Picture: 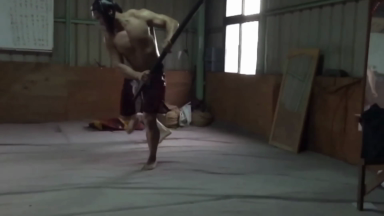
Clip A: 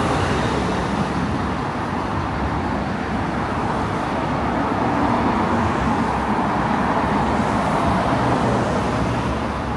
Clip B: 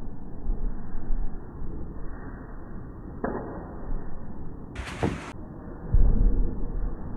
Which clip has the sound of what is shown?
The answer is B